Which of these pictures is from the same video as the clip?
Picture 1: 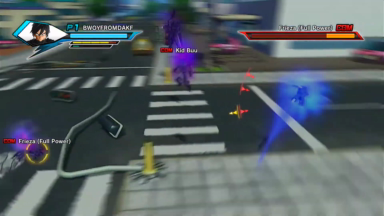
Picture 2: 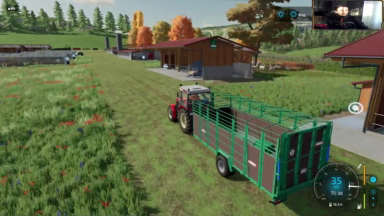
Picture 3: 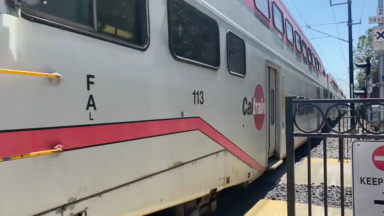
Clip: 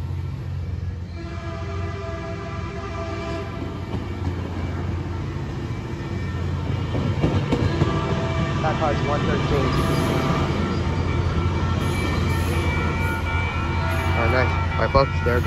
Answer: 3